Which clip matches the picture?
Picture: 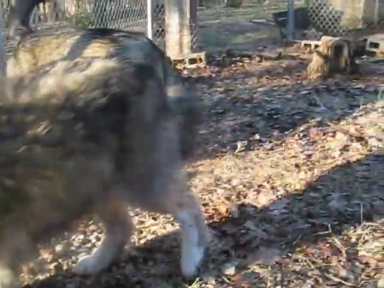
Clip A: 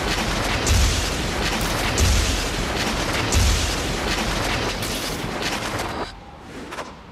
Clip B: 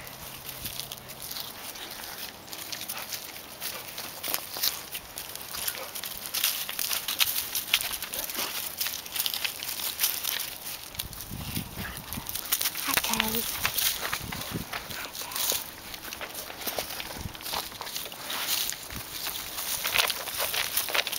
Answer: B